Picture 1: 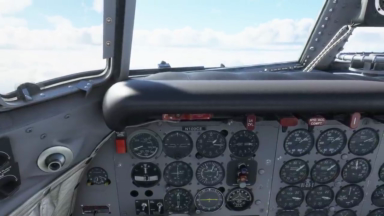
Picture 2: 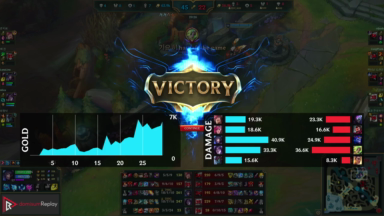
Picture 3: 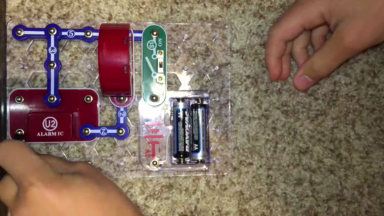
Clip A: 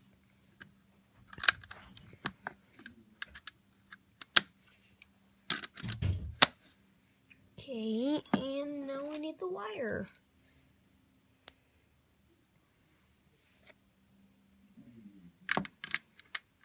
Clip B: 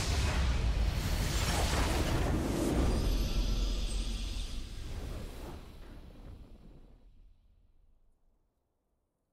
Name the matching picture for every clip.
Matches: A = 3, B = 2